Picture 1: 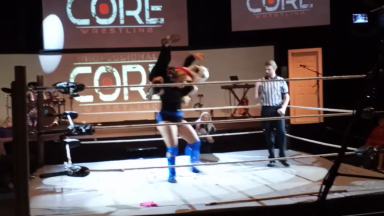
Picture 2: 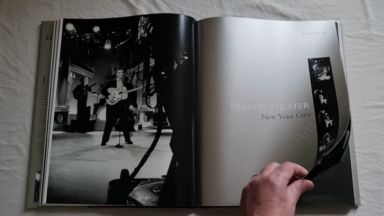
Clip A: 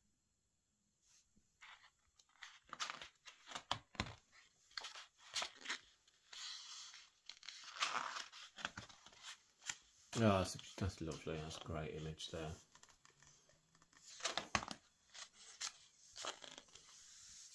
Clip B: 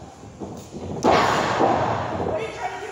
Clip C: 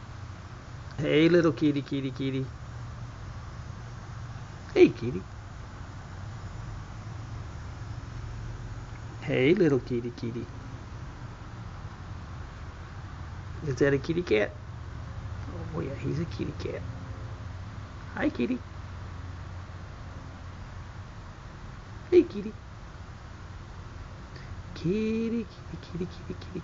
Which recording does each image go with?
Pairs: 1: B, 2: A